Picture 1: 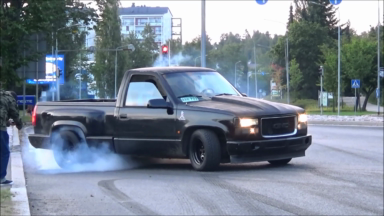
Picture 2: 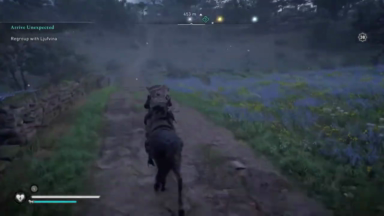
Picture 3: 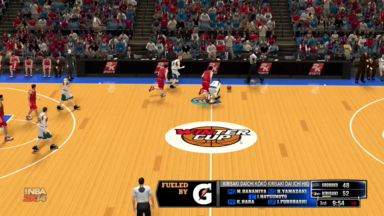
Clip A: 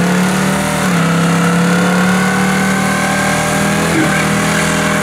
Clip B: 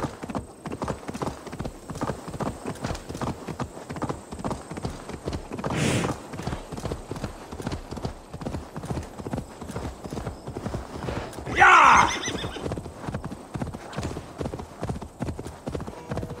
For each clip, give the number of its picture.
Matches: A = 1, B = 2